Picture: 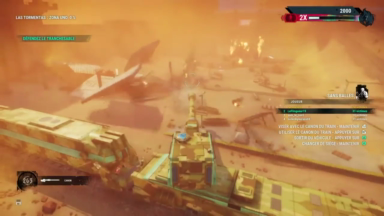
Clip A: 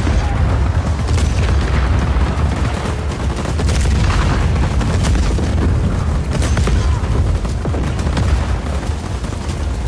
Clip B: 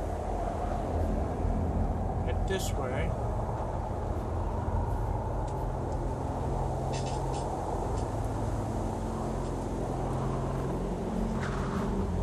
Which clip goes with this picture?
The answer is A